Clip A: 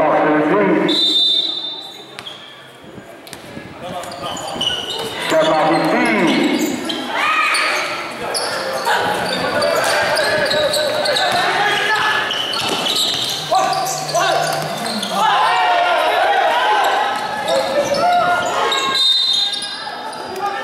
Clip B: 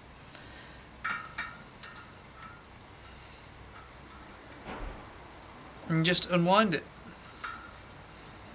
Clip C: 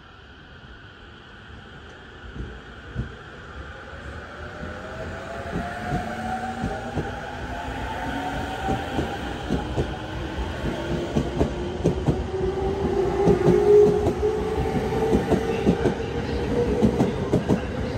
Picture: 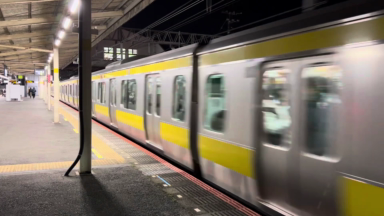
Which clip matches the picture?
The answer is C